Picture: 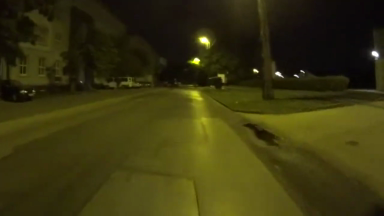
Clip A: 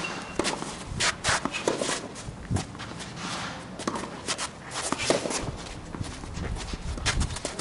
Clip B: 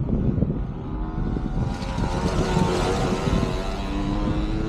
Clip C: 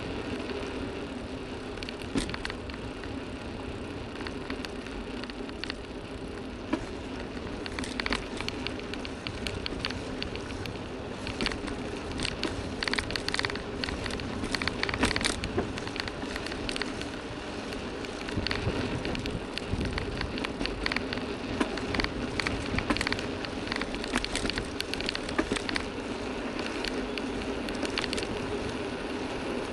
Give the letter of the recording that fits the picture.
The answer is C